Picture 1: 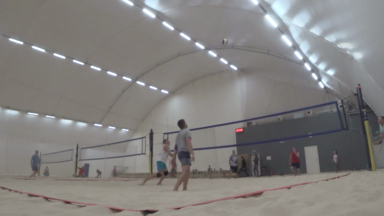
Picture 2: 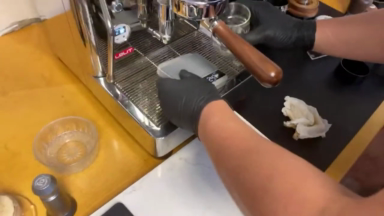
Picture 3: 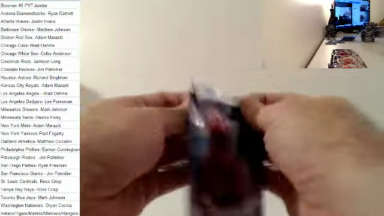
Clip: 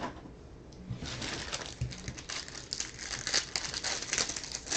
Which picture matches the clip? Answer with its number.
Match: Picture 3